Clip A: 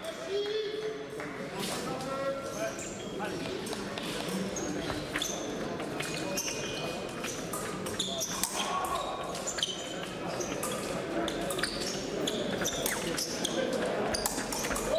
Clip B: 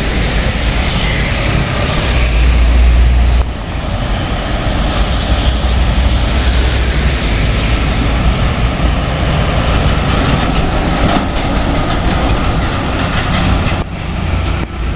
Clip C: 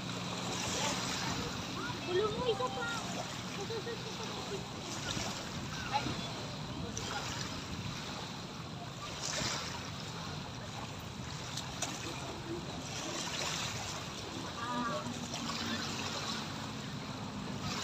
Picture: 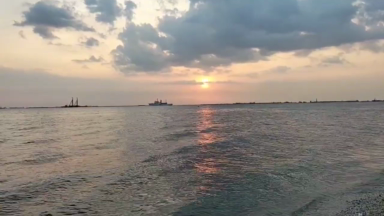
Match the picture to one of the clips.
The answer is C